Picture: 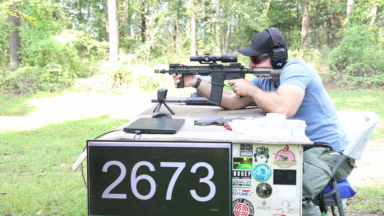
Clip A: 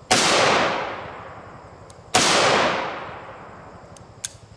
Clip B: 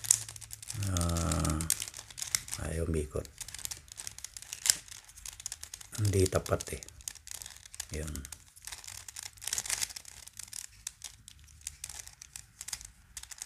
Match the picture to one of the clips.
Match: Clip A